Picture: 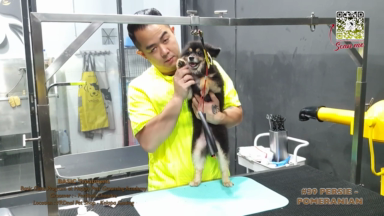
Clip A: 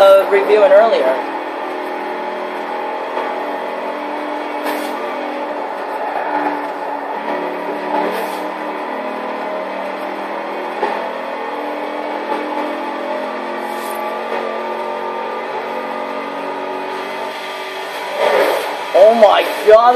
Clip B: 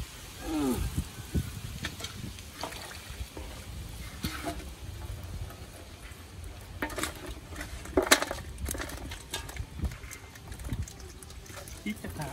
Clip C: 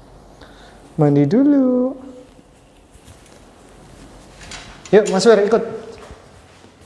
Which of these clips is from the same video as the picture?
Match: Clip C